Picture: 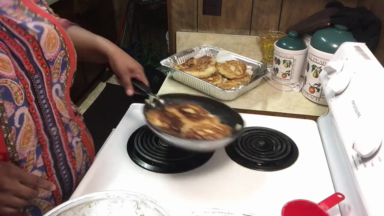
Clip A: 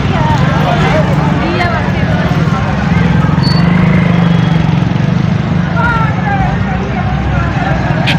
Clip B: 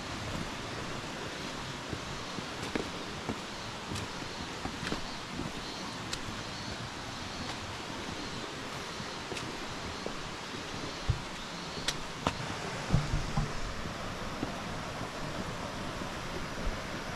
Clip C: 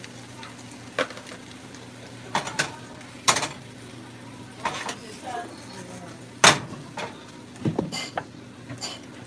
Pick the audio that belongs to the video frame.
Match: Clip C